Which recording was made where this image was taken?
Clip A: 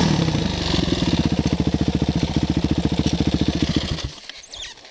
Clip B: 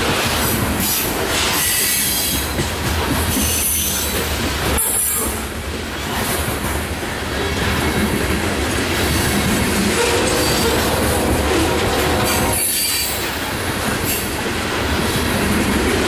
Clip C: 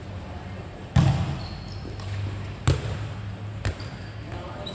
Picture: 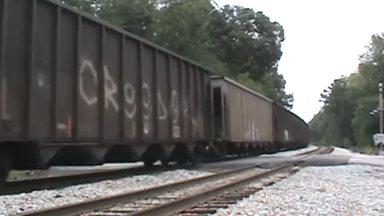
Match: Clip B